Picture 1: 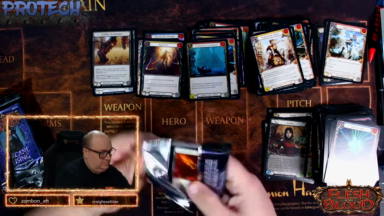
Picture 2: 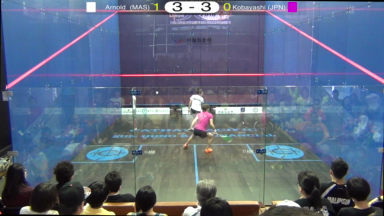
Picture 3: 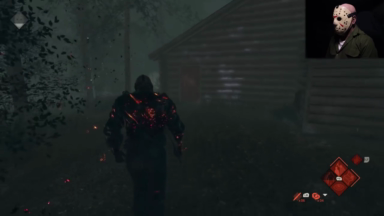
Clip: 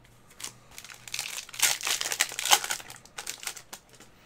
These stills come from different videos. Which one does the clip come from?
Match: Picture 1